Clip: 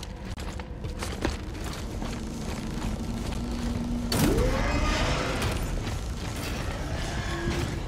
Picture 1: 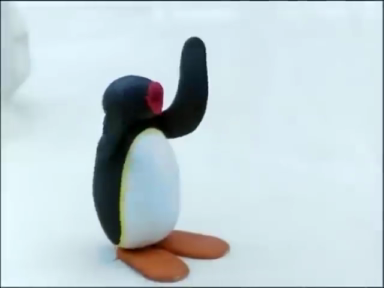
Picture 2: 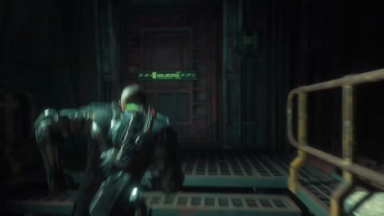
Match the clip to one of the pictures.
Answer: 2